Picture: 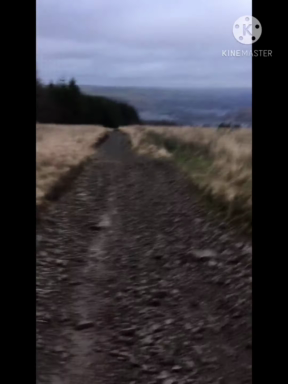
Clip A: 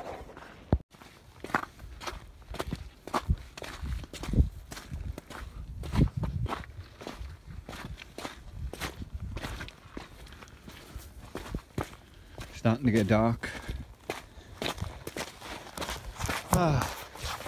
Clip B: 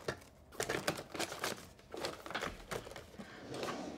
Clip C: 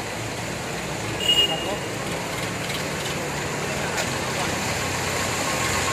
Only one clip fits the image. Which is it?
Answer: A